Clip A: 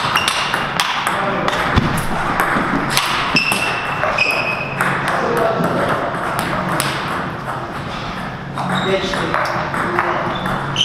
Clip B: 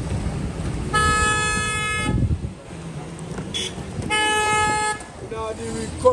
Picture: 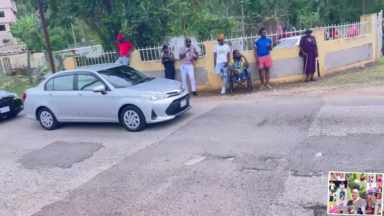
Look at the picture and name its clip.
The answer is B